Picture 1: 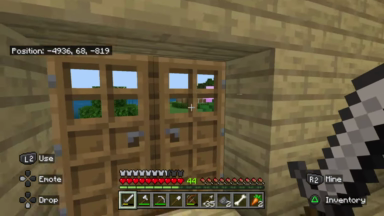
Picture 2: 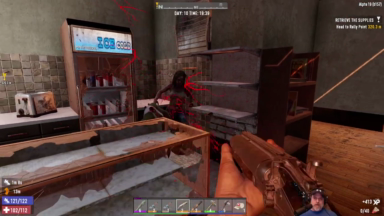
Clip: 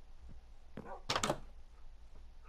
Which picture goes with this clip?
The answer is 1